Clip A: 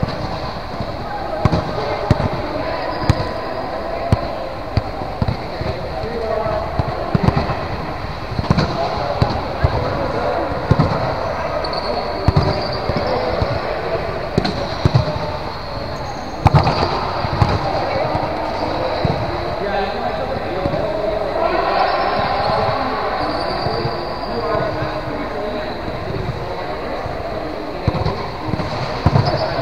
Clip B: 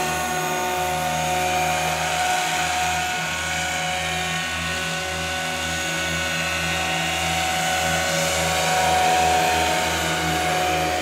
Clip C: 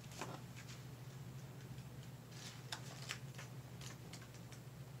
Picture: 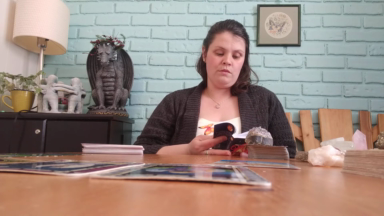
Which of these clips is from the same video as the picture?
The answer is C